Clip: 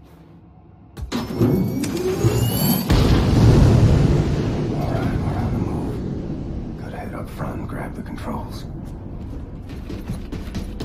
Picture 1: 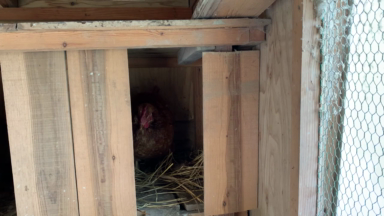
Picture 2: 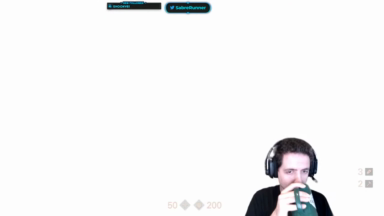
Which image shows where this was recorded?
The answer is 2